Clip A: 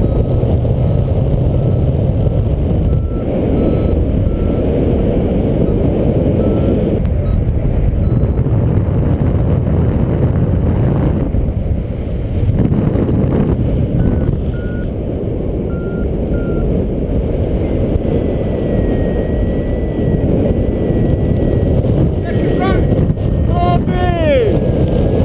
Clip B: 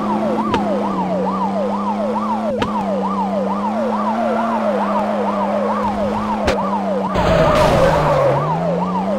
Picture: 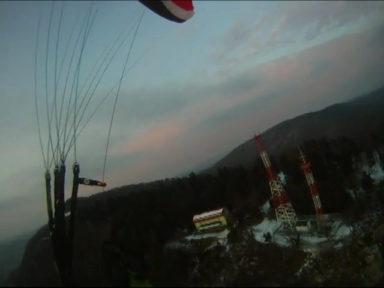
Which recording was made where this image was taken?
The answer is A